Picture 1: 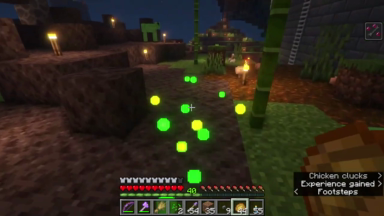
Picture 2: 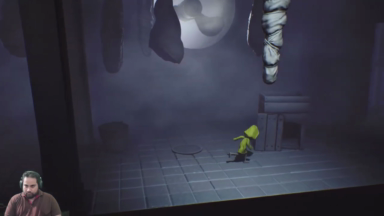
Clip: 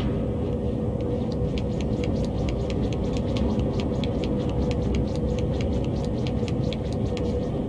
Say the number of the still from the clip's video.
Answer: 2